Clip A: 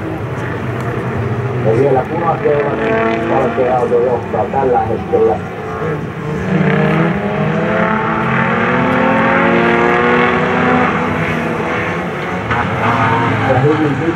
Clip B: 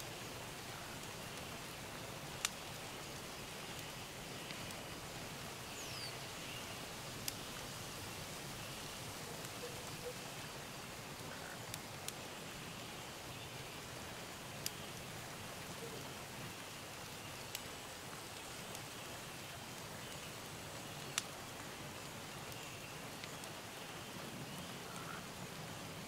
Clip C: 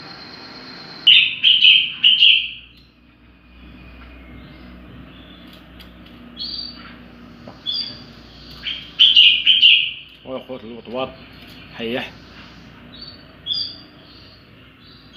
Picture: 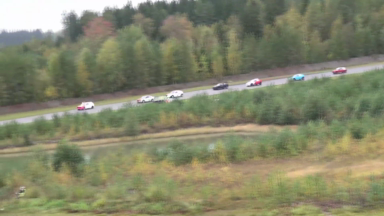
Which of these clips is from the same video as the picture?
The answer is A